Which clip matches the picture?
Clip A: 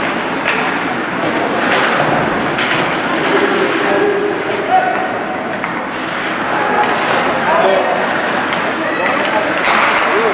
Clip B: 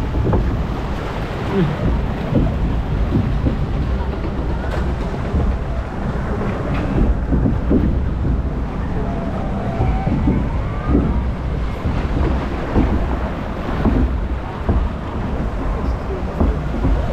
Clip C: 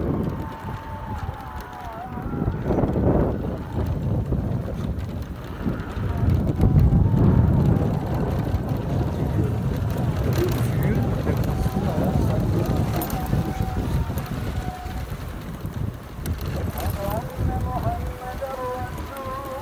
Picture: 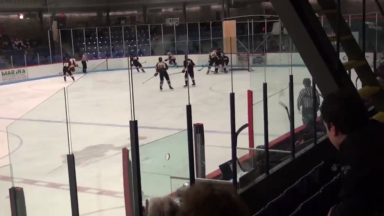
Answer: A